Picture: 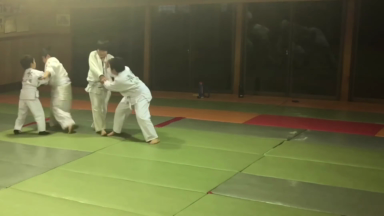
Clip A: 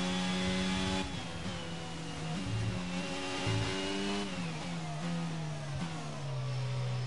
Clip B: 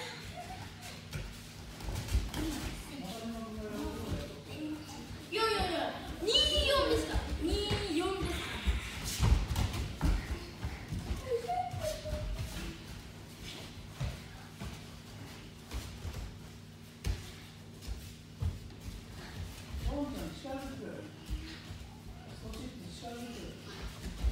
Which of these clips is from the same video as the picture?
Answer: B